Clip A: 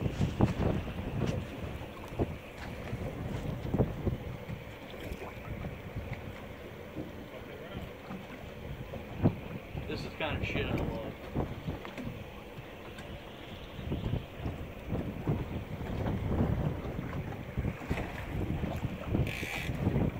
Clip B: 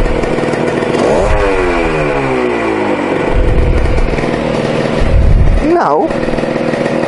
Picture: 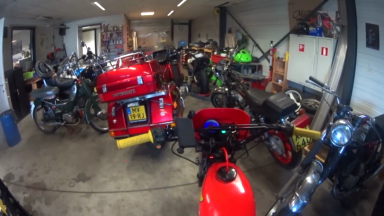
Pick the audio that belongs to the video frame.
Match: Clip B